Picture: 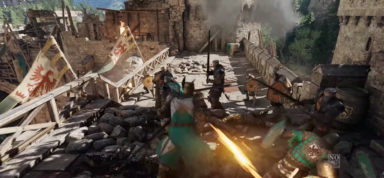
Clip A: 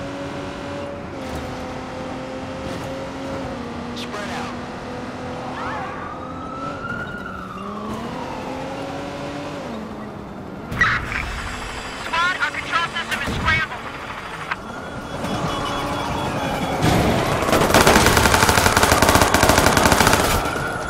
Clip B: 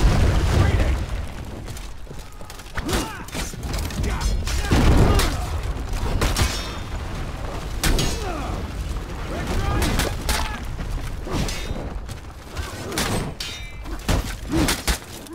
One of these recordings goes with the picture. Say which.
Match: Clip B